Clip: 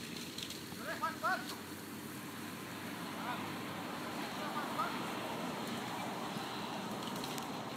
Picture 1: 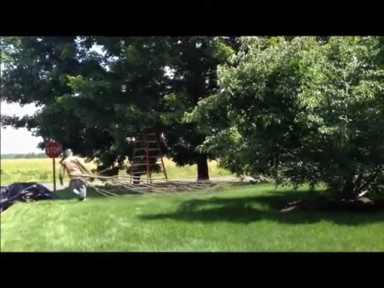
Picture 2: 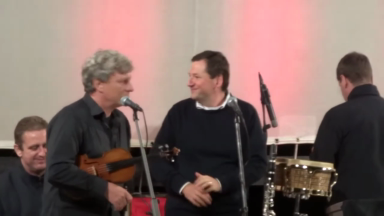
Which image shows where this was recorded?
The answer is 1